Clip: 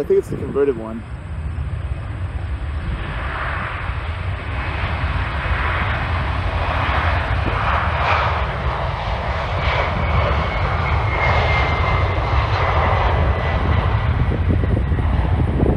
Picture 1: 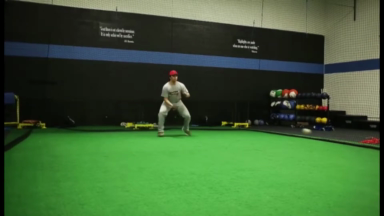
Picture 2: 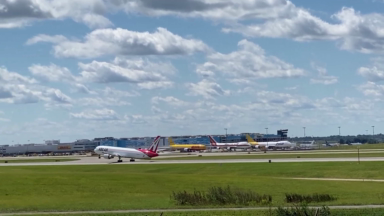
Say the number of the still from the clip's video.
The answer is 2